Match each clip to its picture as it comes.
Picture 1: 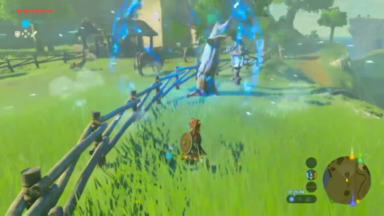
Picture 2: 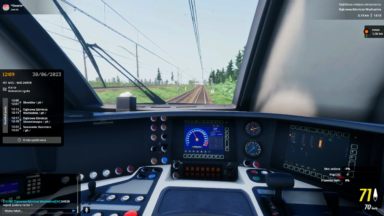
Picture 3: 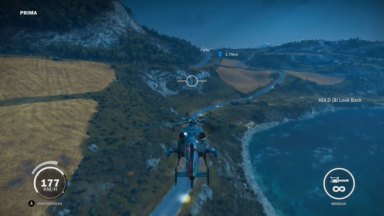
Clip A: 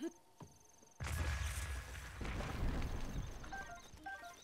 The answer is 1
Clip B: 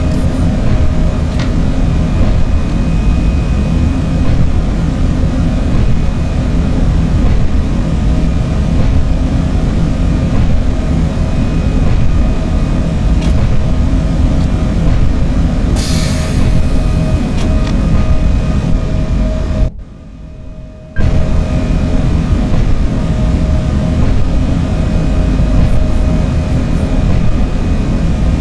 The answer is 2